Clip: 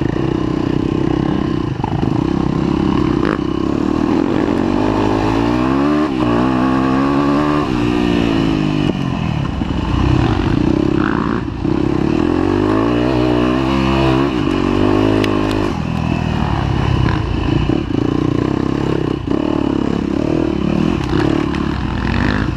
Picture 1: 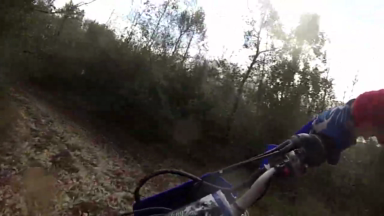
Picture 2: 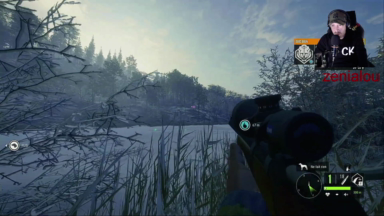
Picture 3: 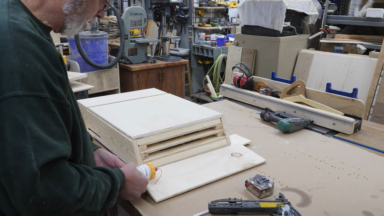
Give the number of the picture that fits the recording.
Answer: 1